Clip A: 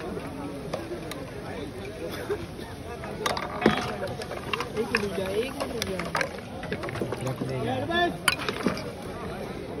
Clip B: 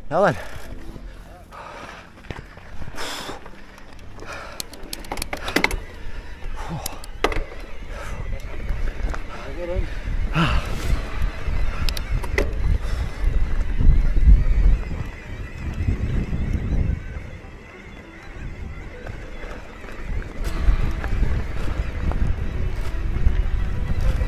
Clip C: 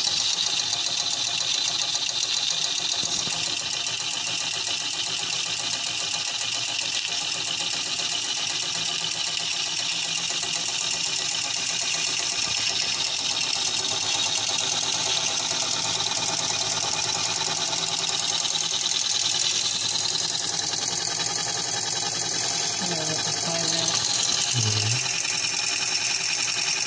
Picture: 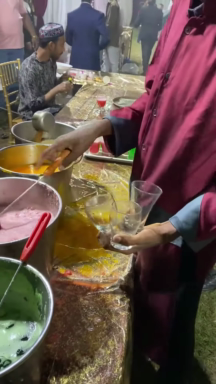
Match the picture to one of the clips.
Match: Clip A